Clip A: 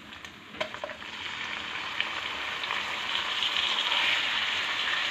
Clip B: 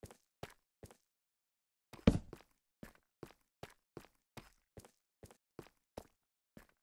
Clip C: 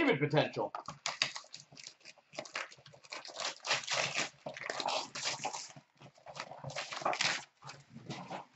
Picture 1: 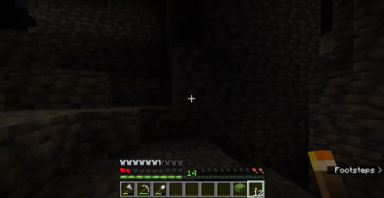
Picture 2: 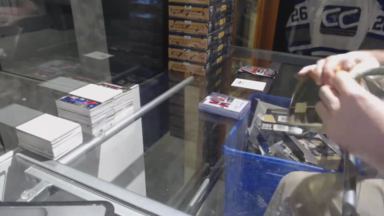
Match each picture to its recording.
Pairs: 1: B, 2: C